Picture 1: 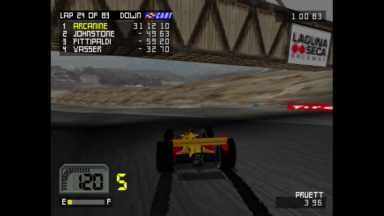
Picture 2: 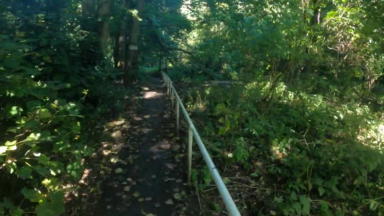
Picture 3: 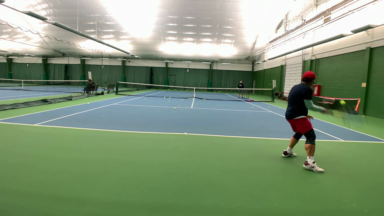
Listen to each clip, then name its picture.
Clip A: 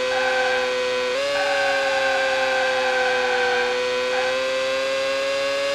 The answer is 1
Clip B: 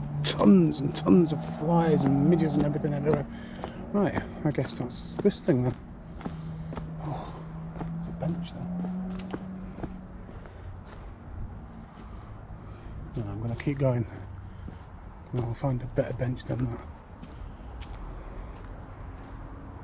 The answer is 2